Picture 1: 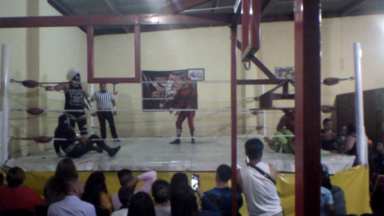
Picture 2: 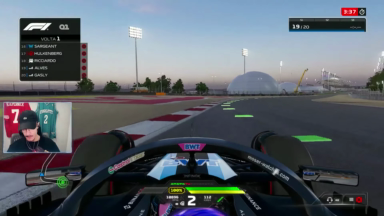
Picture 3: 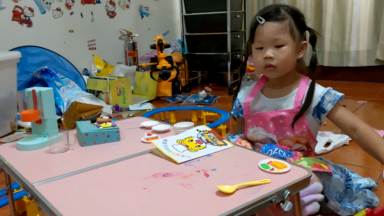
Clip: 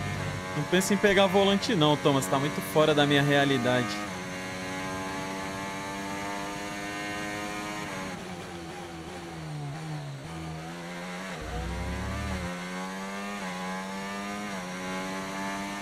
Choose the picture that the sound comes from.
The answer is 2